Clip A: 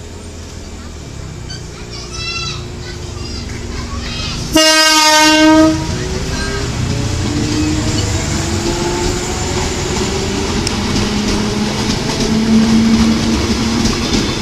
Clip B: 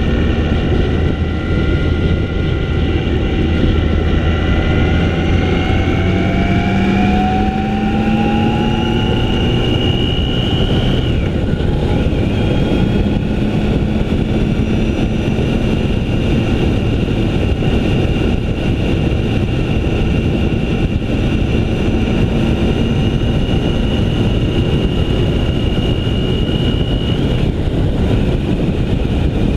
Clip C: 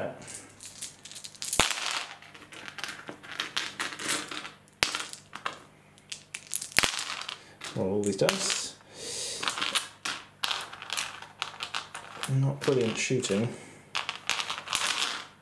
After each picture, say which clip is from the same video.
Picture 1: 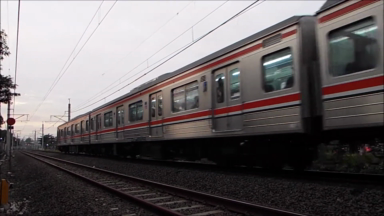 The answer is A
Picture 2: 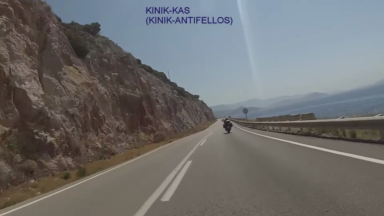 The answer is B